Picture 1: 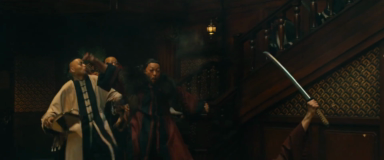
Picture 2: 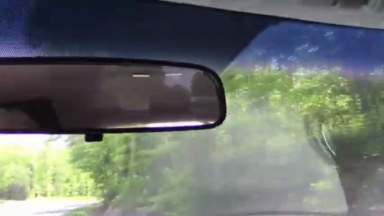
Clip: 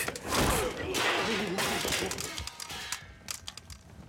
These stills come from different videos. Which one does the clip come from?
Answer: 1